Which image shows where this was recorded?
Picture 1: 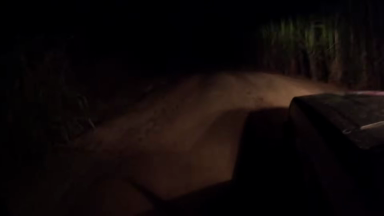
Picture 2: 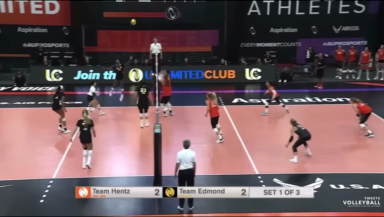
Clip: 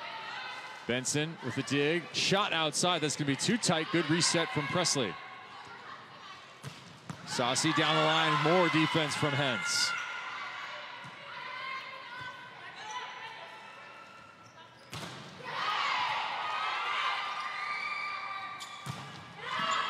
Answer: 2